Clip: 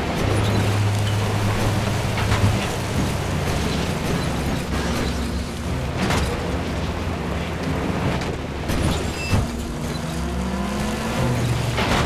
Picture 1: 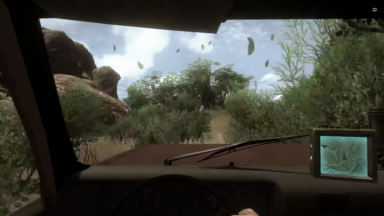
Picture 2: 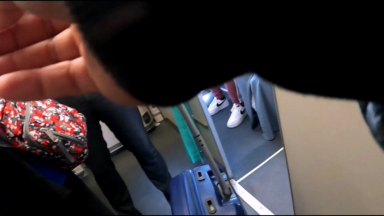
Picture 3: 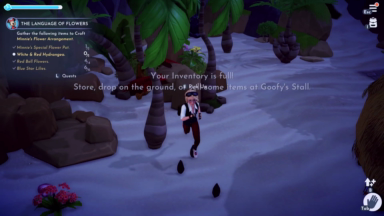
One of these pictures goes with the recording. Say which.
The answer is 1